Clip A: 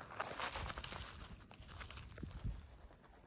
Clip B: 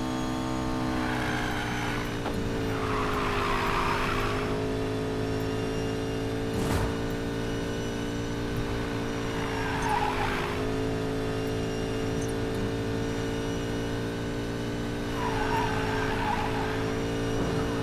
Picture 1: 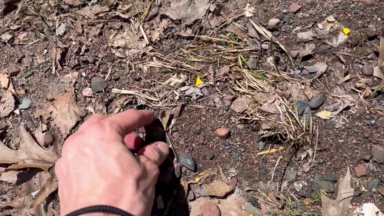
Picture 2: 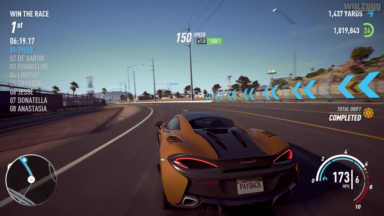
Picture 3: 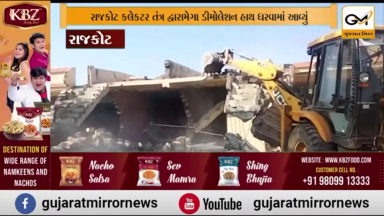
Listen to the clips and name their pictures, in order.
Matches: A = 1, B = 2